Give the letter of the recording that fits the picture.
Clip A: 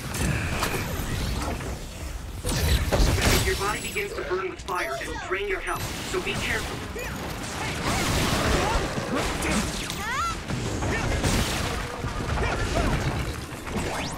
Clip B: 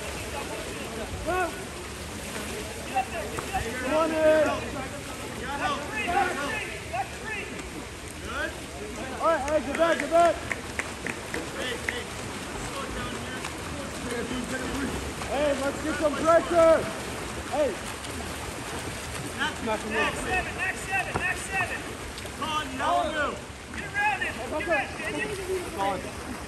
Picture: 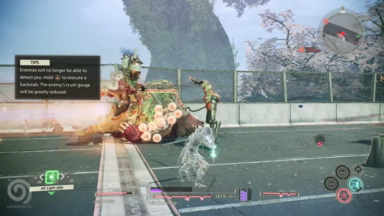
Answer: A